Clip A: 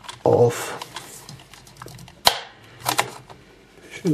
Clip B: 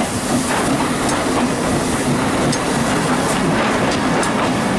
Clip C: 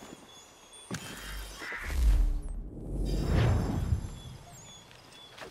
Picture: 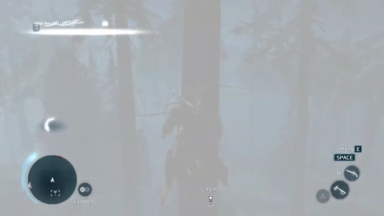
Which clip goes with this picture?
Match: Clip C